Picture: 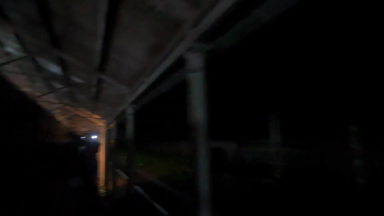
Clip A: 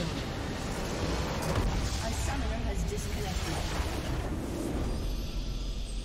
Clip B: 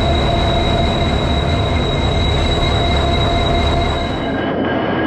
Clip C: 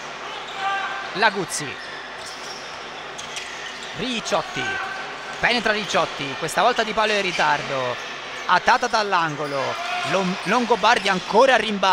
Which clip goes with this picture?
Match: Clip B